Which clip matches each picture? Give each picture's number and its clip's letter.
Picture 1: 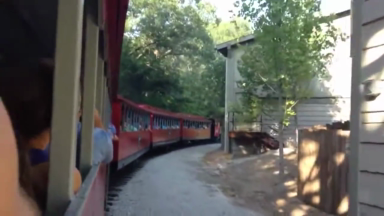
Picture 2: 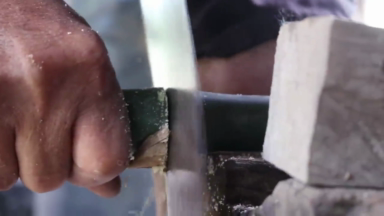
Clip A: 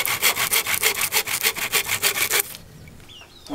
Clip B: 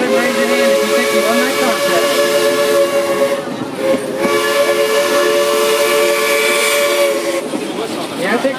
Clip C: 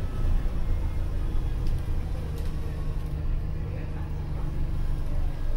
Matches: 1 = B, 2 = A